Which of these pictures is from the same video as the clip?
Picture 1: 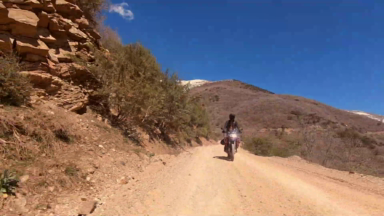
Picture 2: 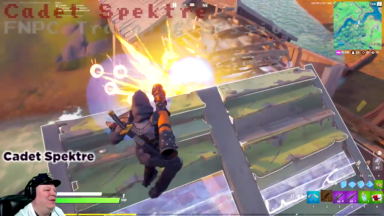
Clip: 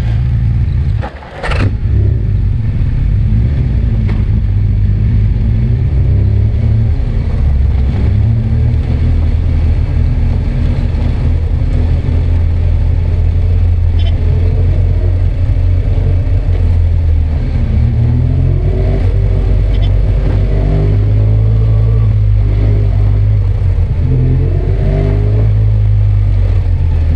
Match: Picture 1